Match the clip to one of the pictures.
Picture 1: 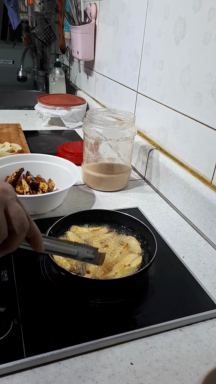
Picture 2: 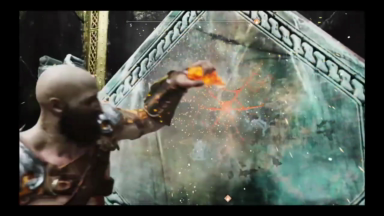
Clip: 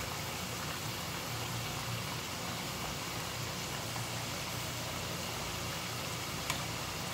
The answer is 1